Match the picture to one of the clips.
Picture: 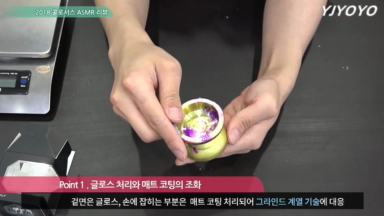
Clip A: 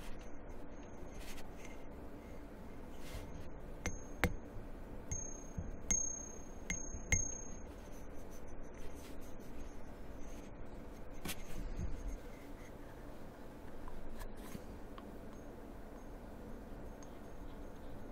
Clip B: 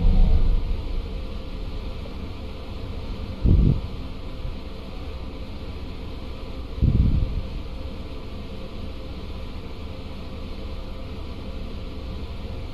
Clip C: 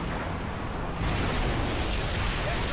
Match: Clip A